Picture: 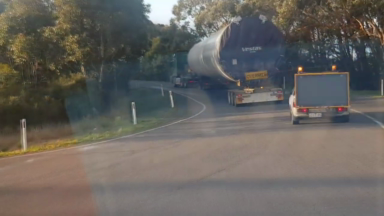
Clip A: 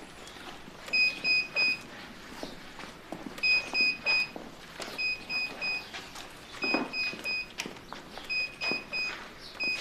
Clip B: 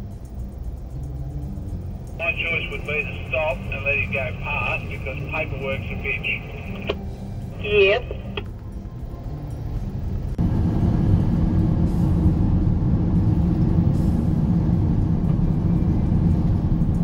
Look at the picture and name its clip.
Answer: B